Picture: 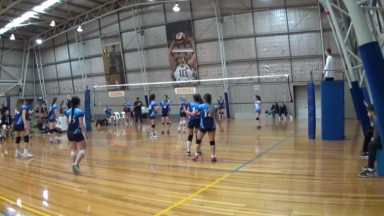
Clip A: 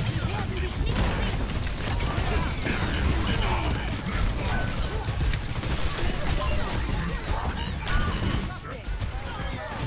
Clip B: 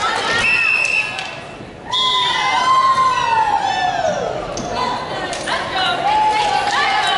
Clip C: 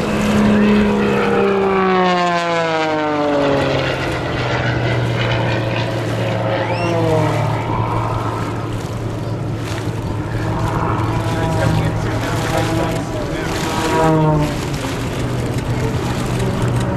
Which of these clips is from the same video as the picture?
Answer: B